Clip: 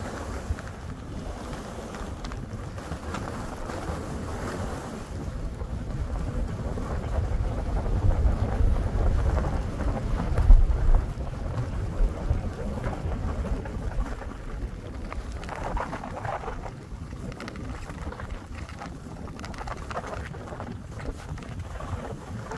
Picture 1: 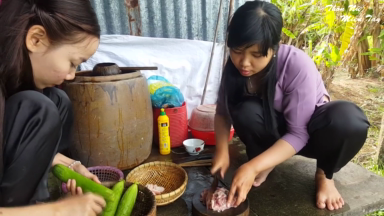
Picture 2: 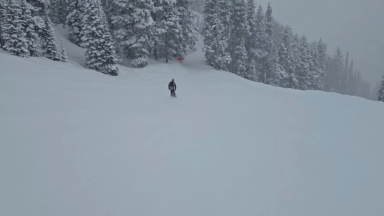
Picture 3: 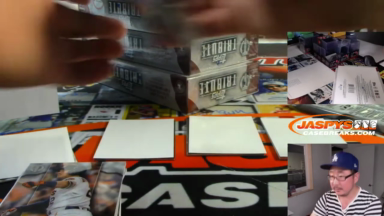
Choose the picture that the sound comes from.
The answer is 2